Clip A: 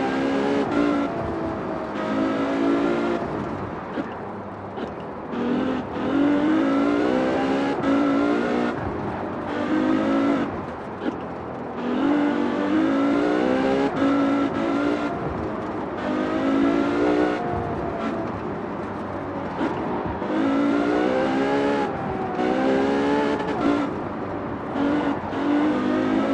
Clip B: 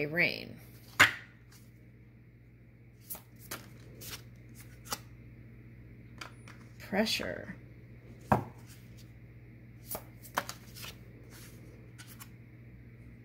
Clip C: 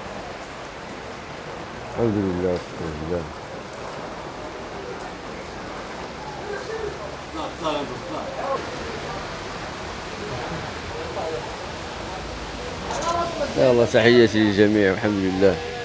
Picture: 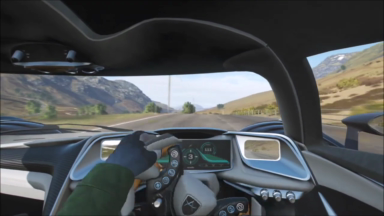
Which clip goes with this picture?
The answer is A